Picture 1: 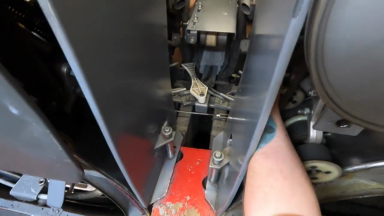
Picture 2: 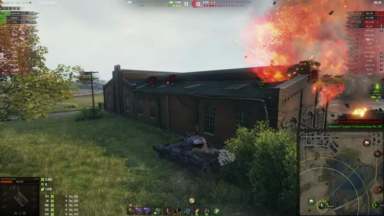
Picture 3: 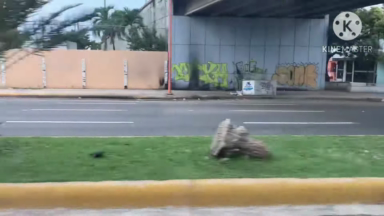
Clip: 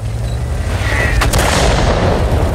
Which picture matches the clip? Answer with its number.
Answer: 2